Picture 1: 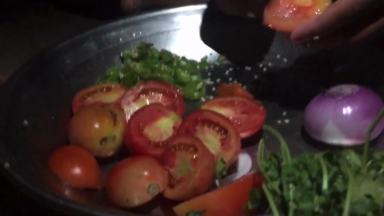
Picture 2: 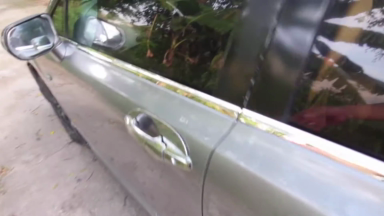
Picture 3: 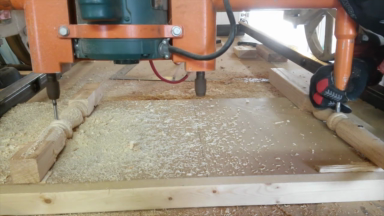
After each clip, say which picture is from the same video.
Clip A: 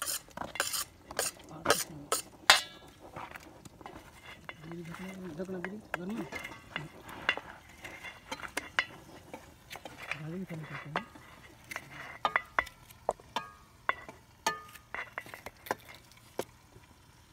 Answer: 1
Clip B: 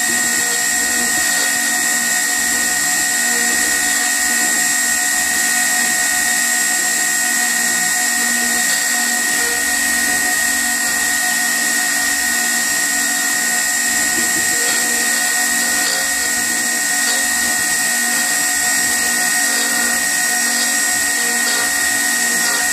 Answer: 3